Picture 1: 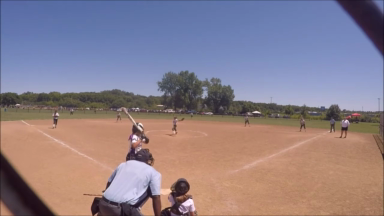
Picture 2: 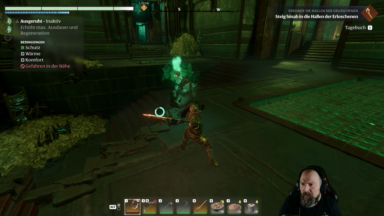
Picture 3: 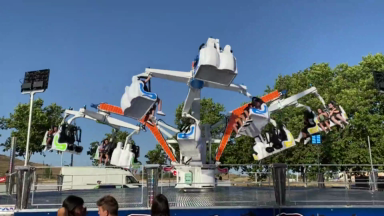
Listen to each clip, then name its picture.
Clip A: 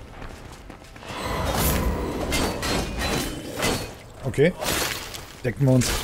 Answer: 2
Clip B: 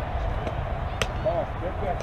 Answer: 1